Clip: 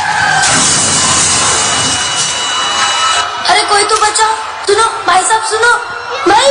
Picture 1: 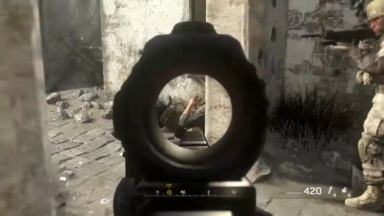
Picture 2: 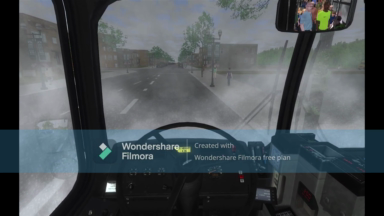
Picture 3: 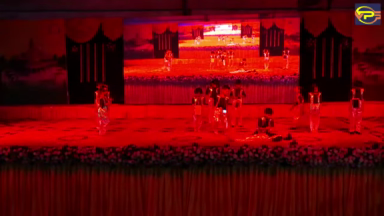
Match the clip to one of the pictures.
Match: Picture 3